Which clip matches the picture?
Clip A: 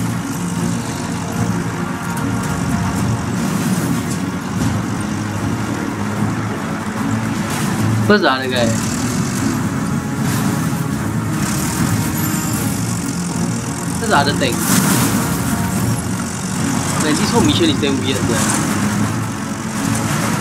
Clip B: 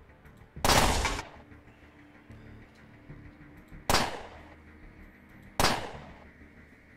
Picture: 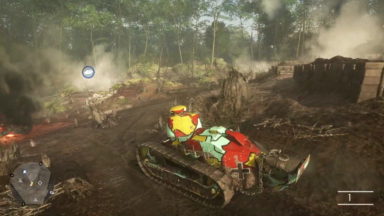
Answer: A